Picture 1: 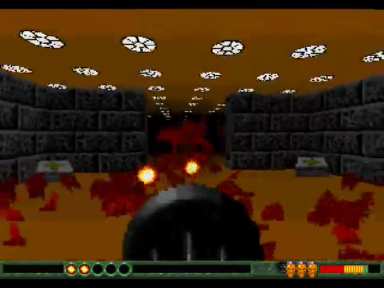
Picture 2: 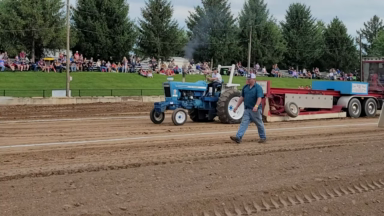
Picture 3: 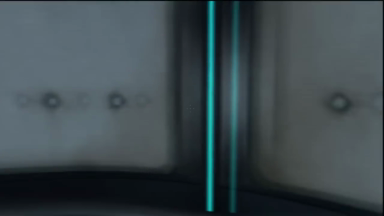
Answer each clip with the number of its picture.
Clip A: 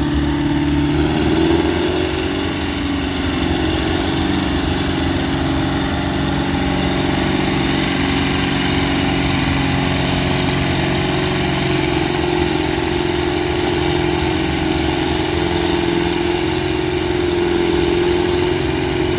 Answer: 2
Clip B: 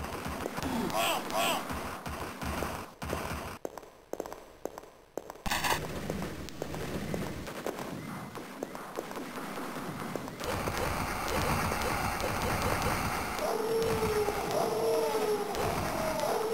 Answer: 1